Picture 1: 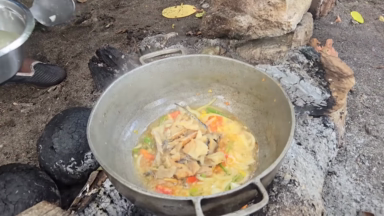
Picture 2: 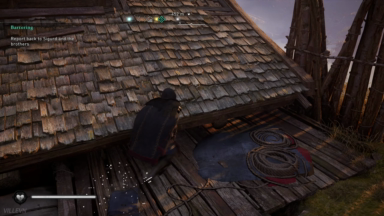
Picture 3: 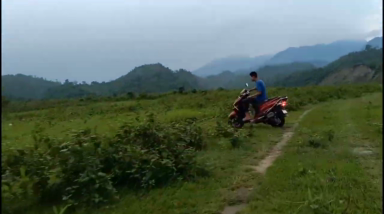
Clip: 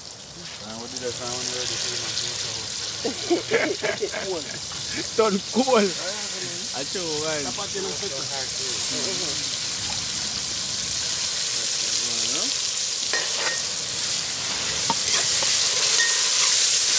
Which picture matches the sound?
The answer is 1